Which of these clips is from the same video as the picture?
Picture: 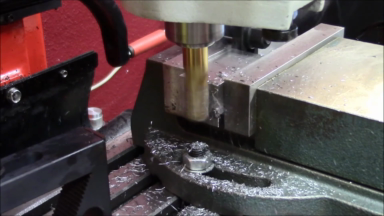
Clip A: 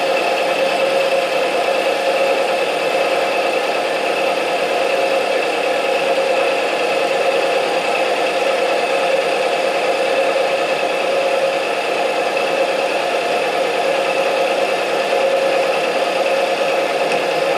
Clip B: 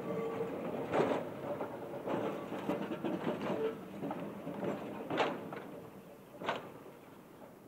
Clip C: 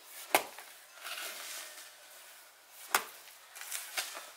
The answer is A